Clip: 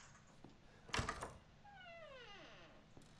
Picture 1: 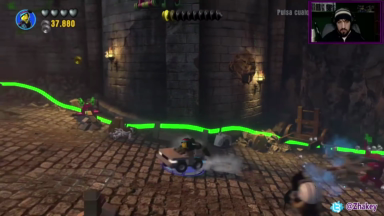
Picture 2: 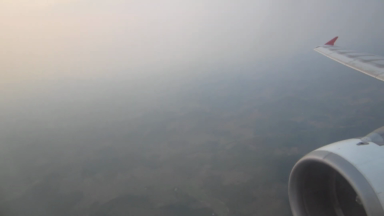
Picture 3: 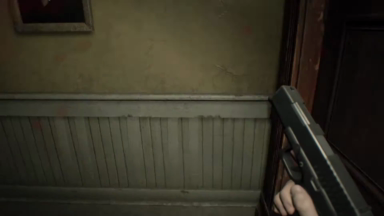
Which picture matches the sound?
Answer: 3